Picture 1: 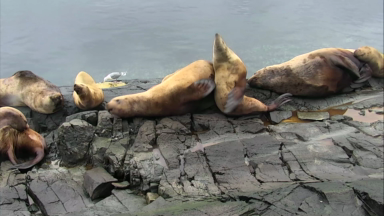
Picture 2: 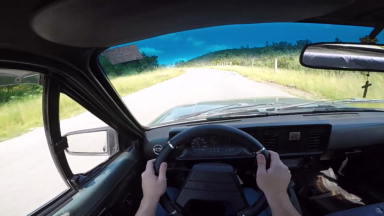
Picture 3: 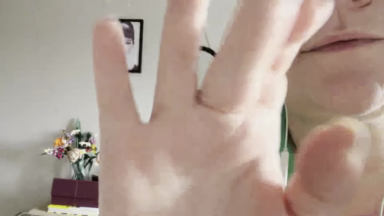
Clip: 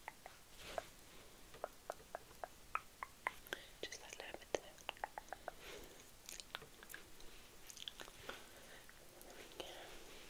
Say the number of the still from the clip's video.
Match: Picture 3